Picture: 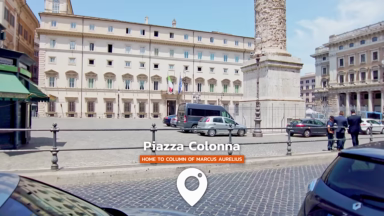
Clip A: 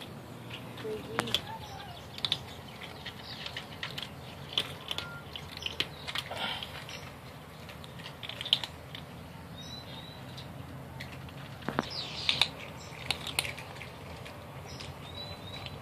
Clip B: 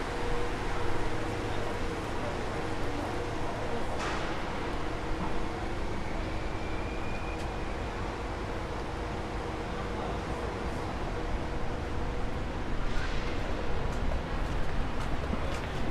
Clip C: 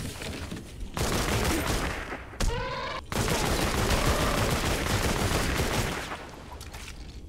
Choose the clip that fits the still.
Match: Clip B